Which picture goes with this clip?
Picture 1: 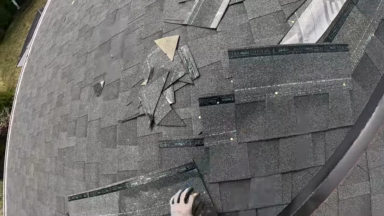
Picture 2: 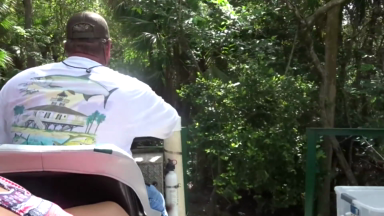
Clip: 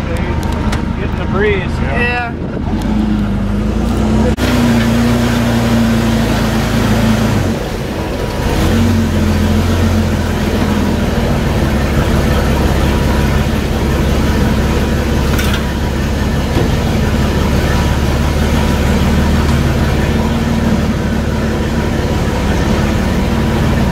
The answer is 2